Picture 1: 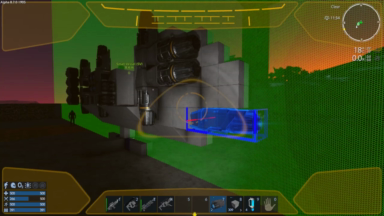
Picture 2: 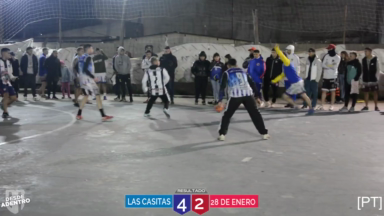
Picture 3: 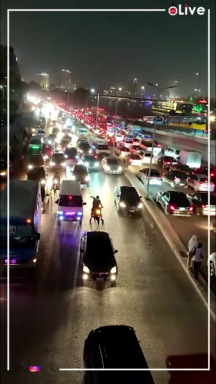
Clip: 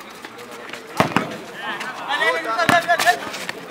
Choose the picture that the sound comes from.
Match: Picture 2